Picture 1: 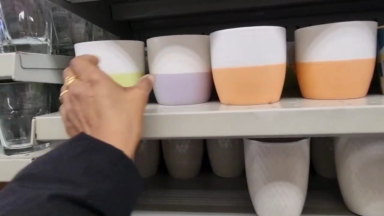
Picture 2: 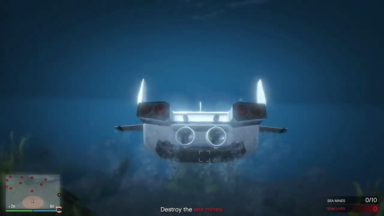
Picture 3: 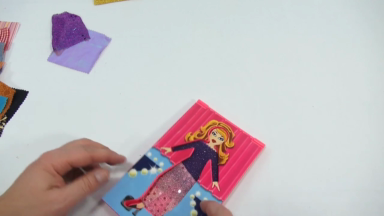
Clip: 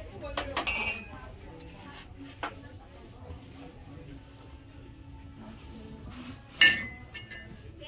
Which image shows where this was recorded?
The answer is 1